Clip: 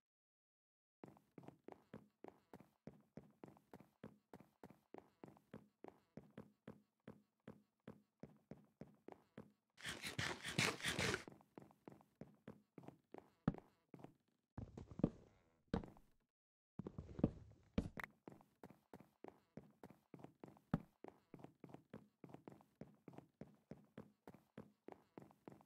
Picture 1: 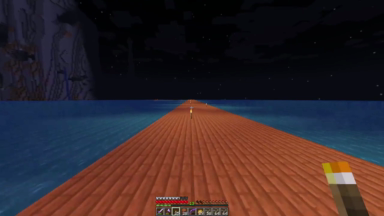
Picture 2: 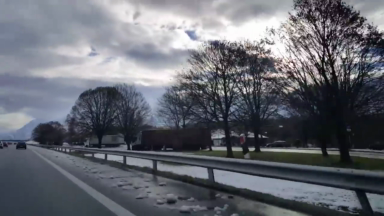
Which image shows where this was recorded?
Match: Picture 1